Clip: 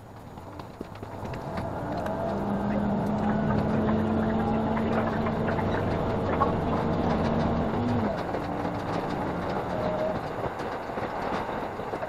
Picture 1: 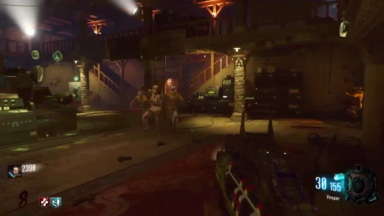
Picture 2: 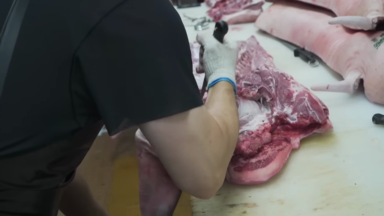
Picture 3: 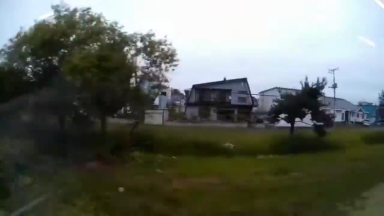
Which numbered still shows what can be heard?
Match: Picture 3